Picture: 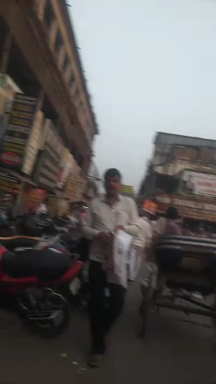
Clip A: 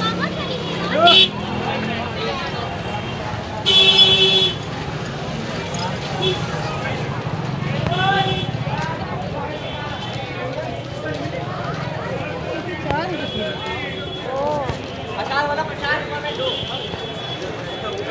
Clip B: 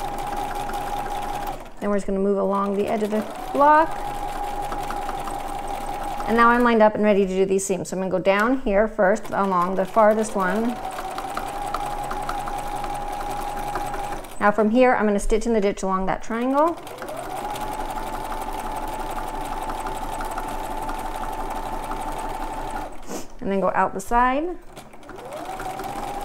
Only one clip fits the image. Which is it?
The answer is A